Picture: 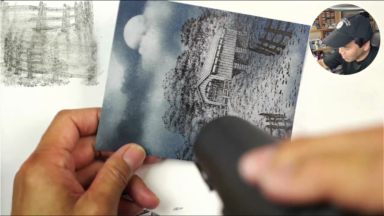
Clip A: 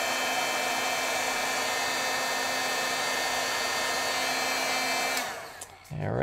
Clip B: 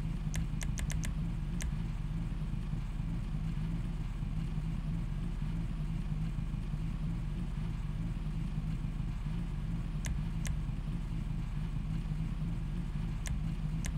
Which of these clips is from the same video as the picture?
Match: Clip A